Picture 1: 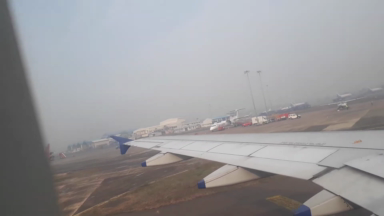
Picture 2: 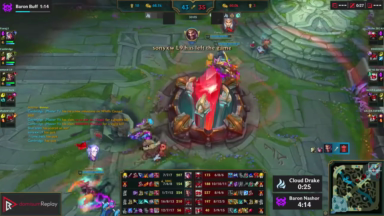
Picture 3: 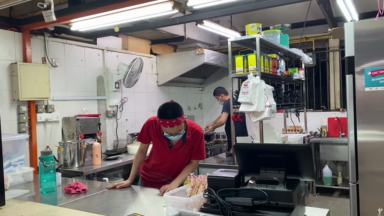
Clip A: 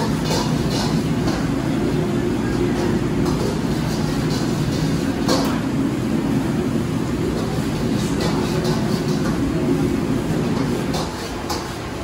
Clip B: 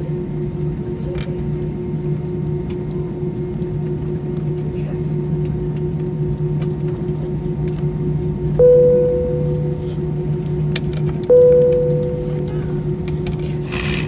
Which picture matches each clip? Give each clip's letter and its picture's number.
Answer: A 3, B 1